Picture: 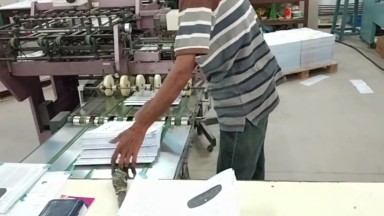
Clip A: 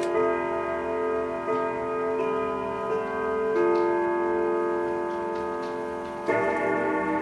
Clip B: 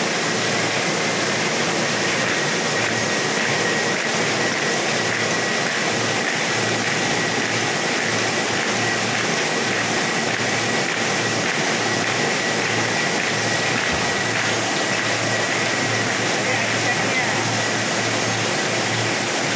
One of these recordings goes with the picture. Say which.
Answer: B